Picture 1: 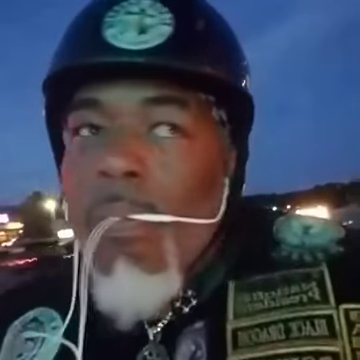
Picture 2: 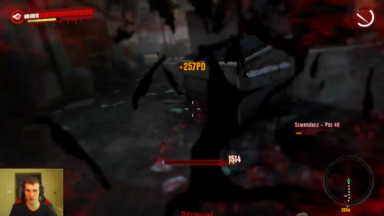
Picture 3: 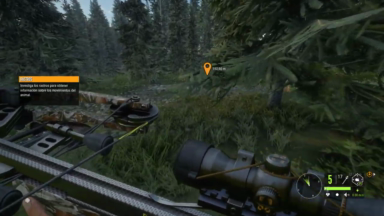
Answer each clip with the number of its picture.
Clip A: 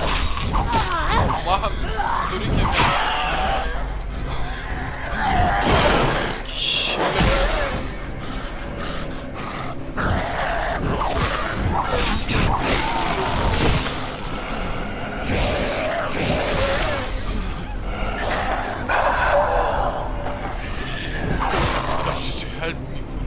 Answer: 2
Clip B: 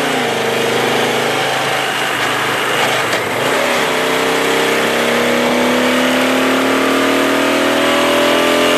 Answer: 1